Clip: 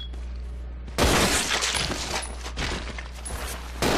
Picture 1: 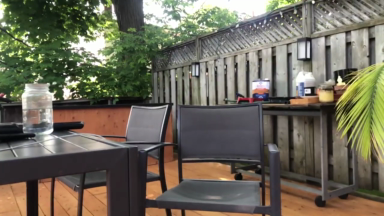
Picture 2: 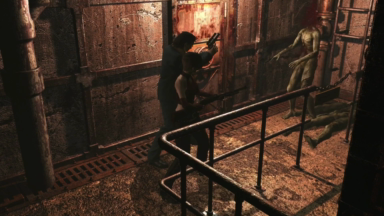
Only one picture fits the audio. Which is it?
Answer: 2